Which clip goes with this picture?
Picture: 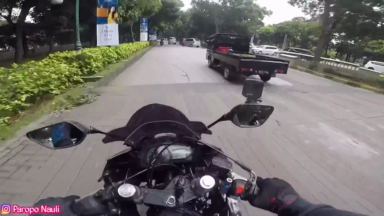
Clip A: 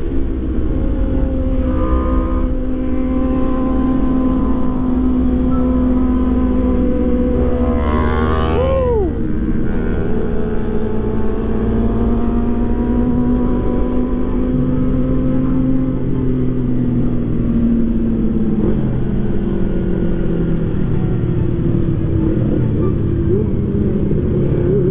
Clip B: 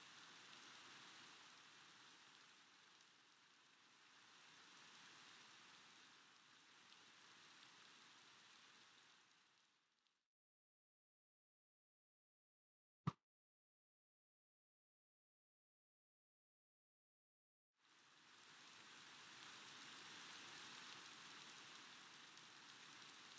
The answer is A